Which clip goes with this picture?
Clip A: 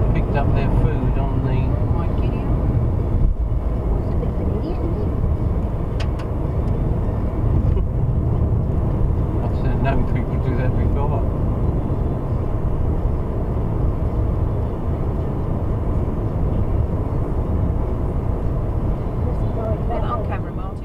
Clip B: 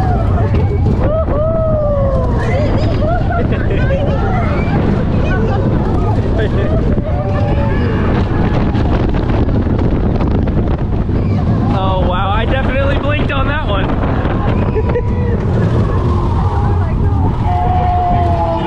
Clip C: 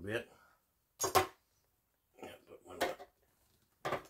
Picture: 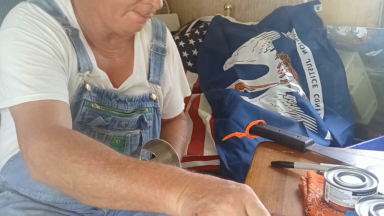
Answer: C